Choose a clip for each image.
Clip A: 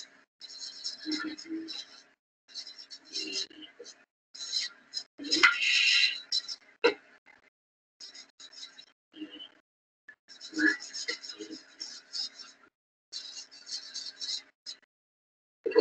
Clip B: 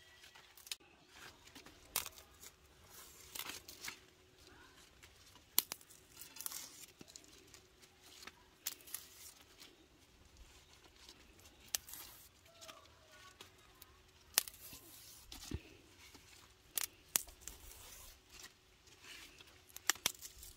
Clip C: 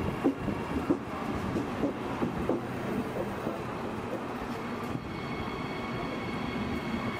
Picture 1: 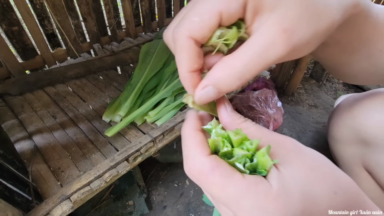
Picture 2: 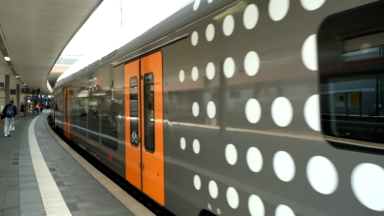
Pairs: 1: B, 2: C